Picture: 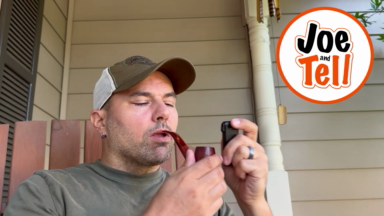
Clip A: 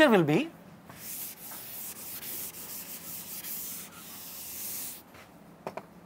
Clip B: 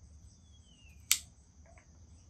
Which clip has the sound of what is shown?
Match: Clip B